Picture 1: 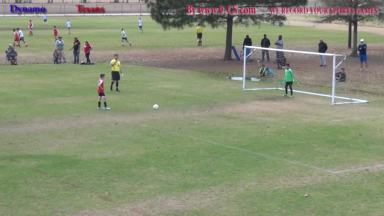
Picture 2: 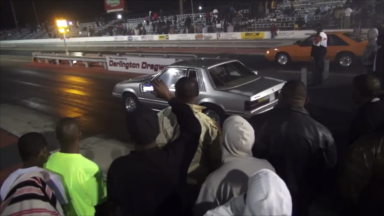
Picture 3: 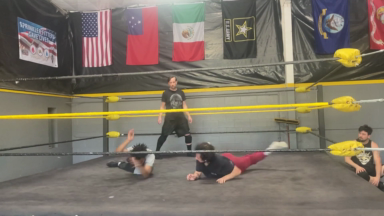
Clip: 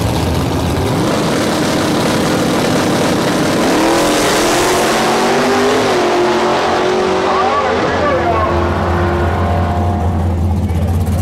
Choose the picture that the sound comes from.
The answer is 2